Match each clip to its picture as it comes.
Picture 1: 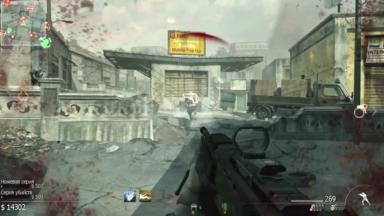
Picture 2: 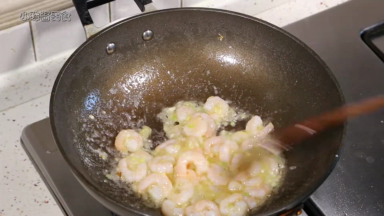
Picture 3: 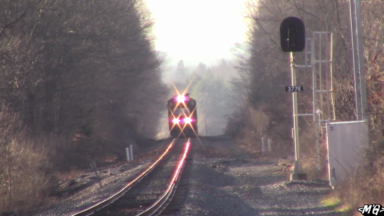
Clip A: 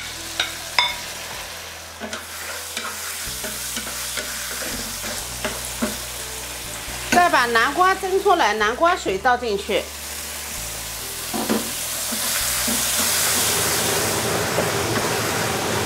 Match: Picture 2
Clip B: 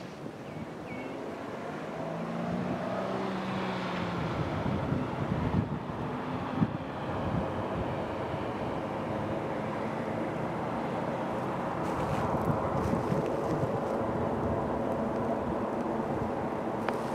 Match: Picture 3